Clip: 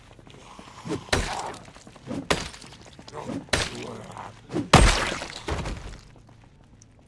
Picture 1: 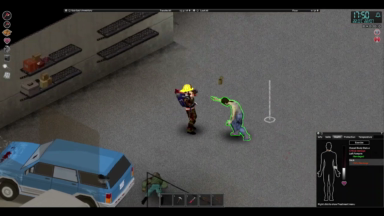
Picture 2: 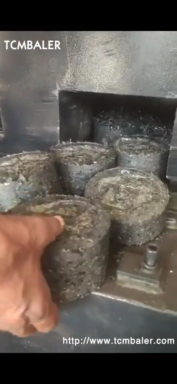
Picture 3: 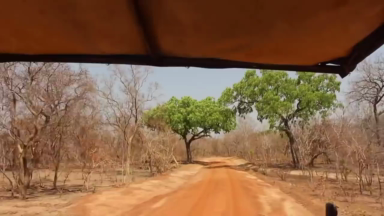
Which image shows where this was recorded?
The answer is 1